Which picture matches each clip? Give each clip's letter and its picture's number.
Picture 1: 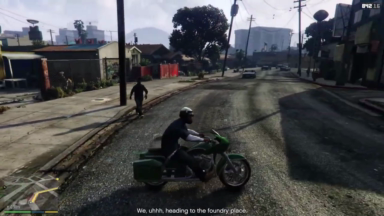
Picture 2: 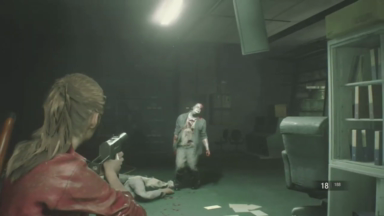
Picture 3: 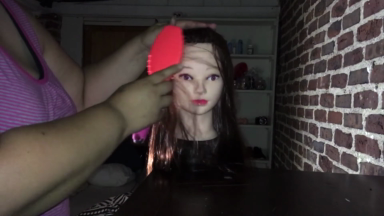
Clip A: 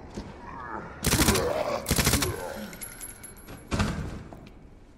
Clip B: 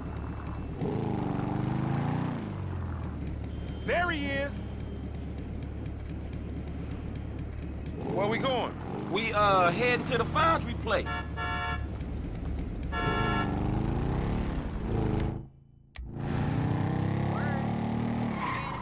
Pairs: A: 2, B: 1